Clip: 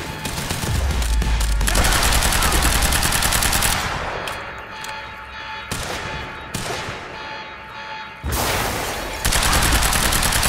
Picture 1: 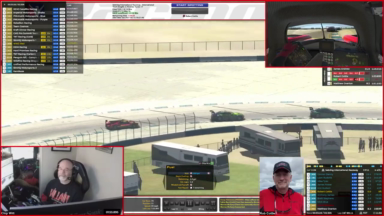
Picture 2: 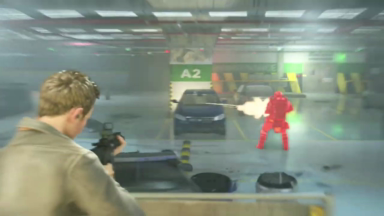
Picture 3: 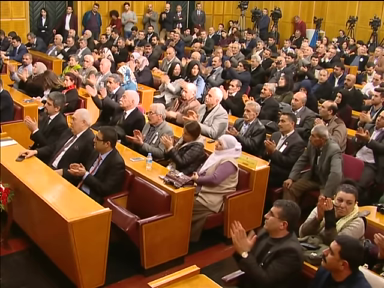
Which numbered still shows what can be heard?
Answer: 2